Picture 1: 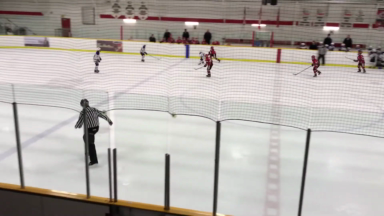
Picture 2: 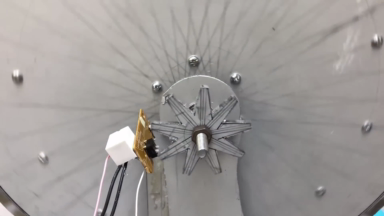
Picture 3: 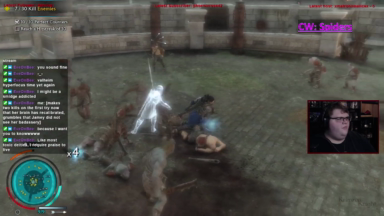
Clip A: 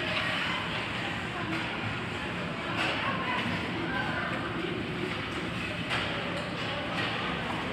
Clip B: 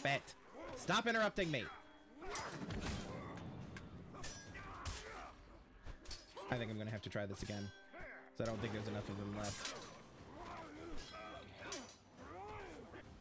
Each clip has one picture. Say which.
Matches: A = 1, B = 3